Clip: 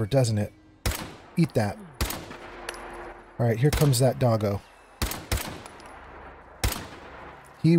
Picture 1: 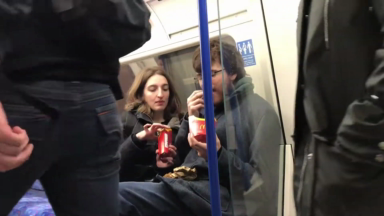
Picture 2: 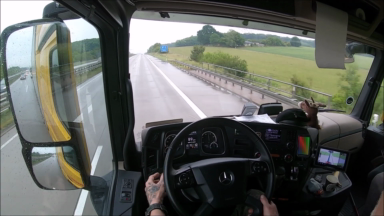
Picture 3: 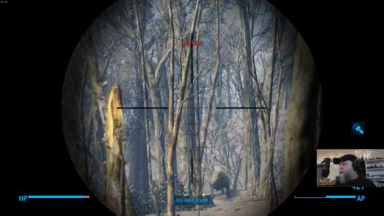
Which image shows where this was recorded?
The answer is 3